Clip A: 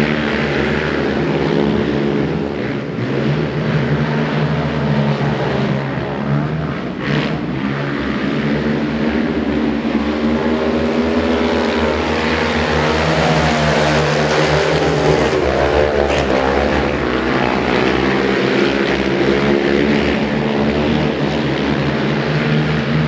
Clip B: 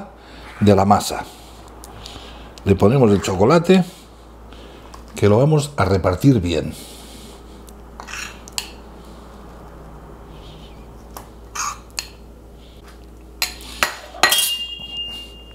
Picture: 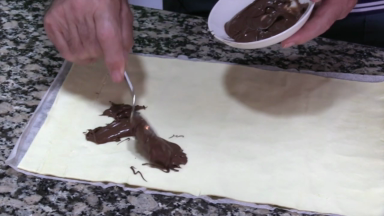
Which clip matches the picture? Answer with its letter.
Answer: B